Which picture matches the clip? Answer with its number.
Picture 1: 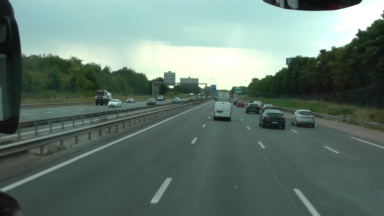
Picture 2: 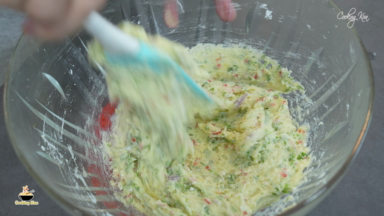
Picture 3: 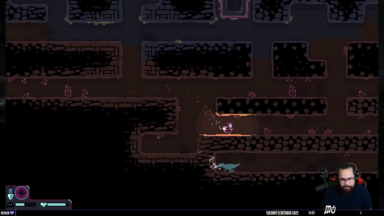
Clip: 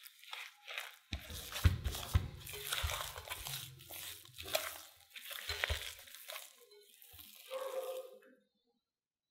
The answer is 2